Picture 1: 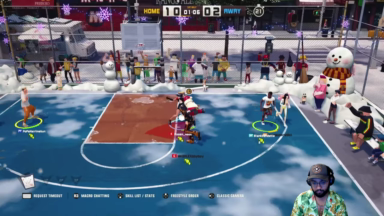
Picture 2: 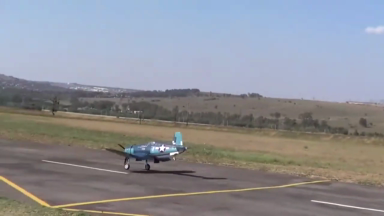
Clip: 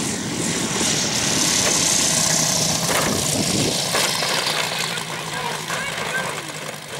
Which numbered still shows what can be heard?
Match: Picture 2